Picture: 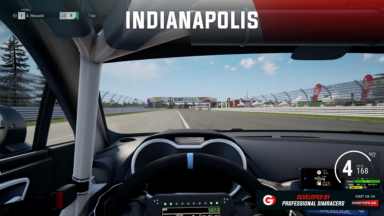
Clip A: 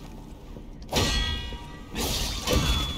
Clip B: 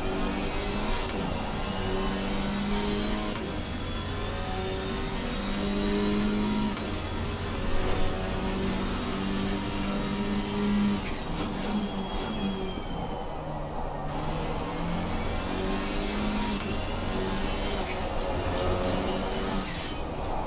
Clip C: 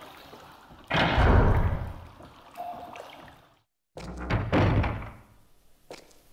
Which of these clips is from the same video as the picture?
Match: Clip B